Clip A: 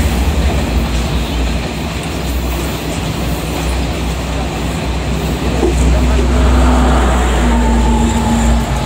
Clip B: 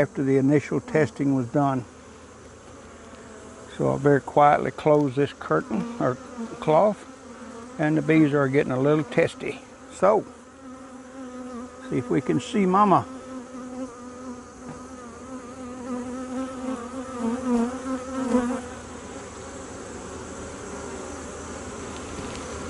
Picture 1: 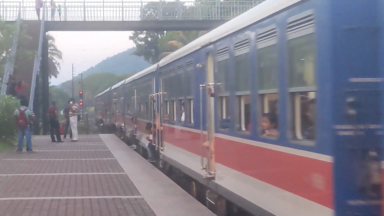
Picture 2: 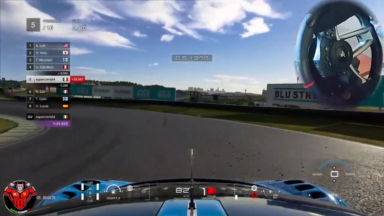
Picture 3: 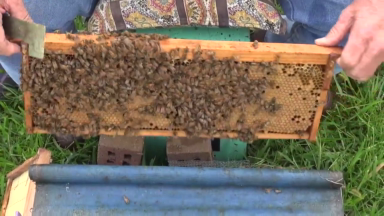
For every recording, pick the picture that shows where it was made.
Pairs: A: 1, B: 3